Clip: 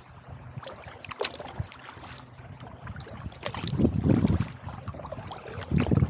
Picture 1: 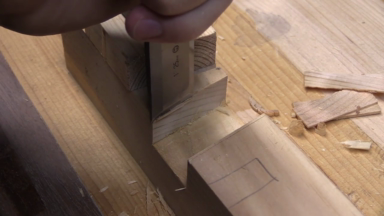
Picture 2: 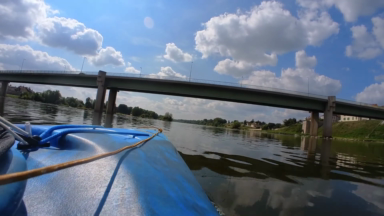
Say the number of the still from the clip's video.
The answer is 2